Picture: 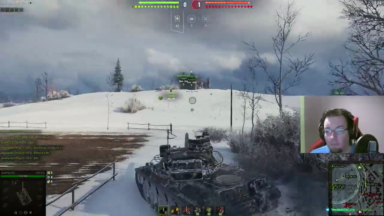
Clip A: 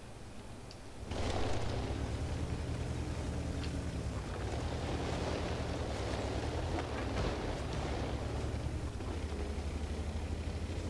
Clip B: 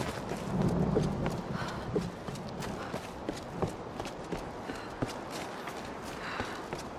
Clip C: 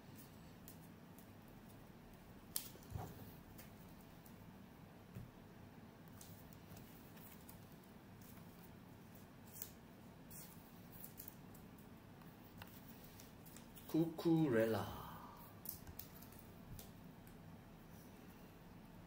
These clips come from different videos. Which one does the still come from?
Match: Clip A